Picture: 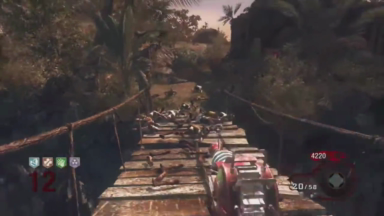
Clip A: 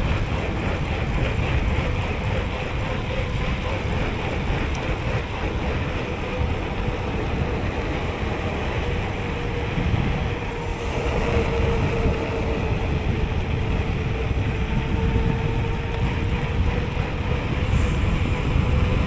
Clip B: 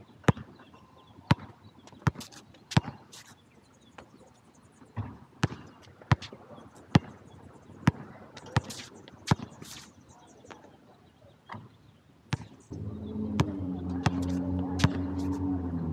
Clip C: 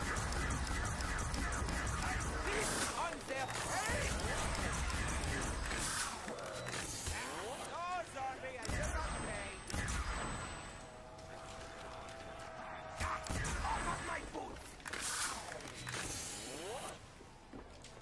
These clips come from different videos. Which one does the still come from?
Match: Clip C